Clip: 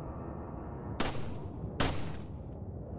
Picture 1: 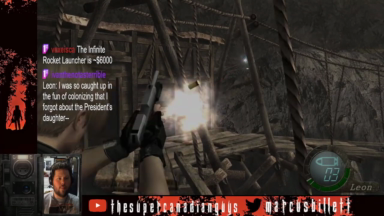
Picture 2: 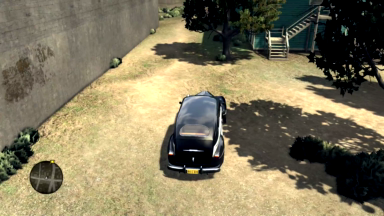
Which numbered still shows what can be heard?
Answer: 1